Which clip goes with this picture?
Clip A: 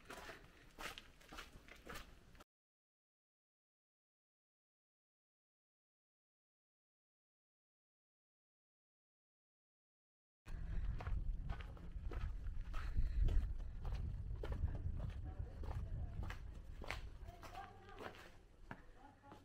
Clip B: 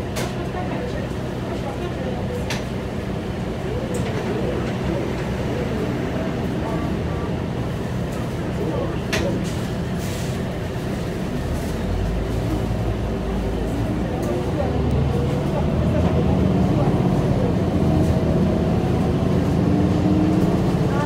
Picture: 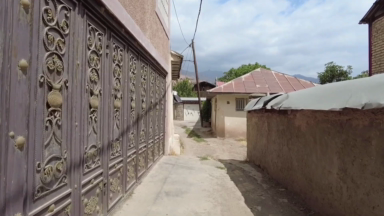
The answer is A